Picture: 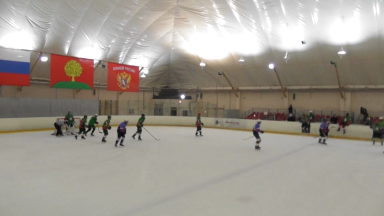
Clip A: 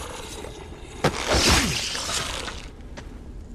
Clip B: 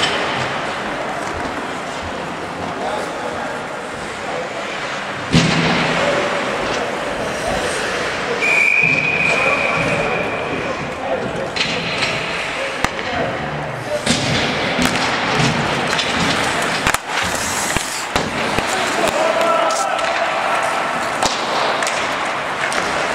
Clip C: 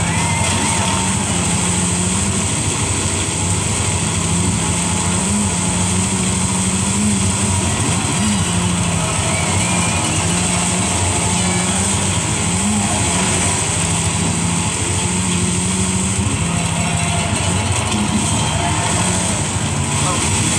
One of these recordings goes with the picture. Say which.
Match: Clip B